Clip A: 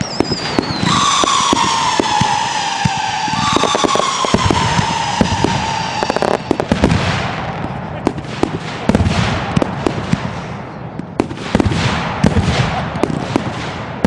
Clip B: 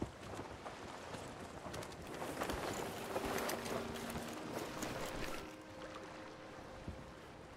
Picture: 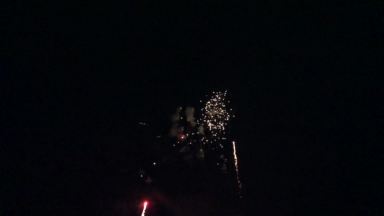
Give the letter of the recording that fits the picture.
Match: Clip A